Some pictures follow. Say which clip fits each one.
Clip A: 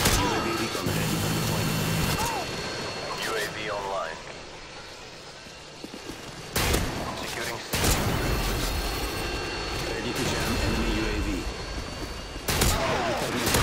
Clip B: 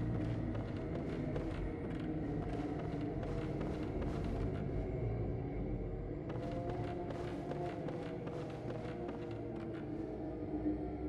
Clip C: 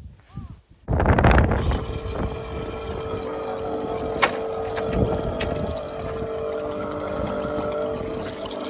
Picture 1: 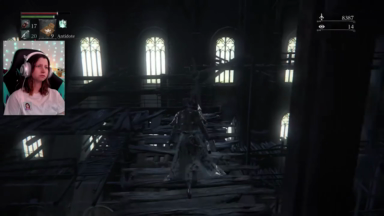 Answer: B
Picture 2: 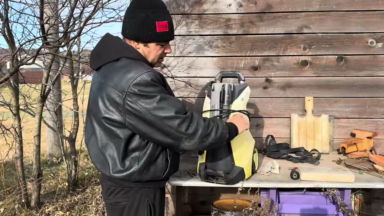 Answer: C